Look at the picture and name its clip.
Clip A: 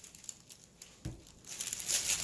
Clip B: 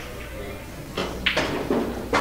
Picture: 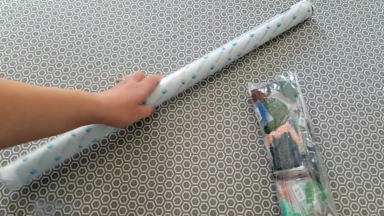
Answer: A